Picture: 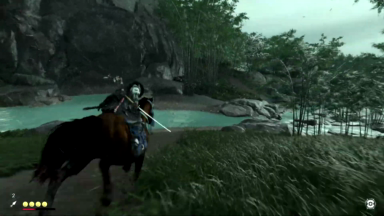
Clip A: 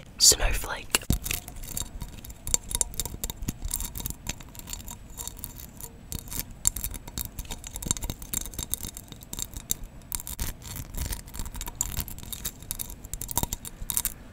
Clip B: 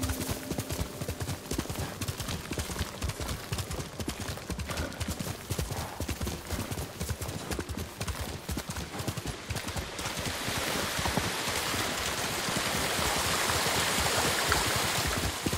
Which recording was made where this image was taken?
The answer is B